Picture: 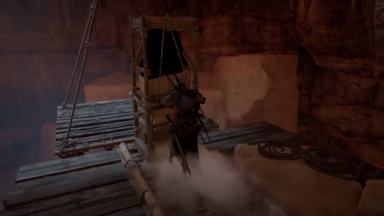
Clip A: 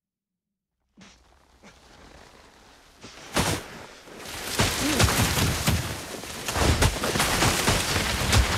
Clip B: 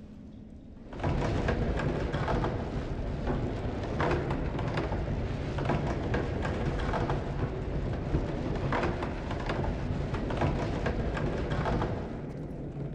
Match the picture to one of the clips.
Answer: B